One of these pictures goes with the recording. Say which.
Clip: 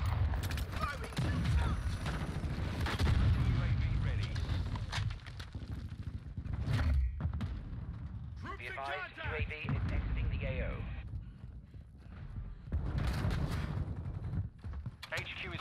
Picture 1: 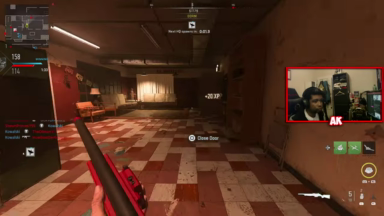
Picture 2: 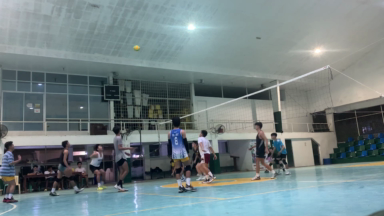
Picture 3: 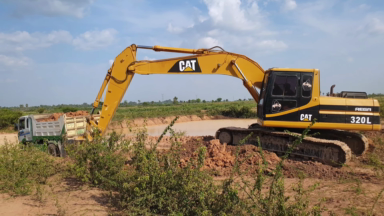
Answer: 1